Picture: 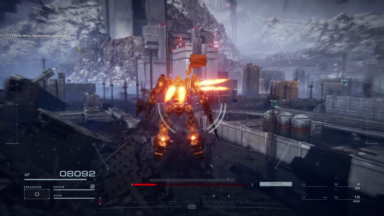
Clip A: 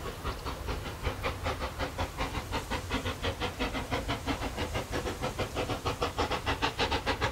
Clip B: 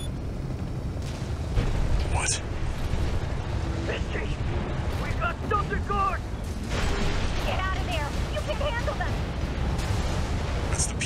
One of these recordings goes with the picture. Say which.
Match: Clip B